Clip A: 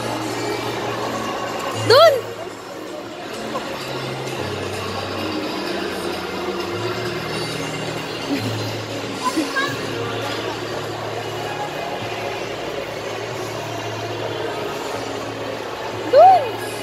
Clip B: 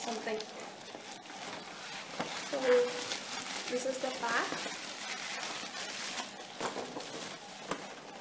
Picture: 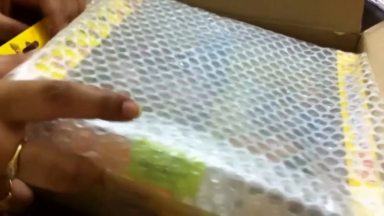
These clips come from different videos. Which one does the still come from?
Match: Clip B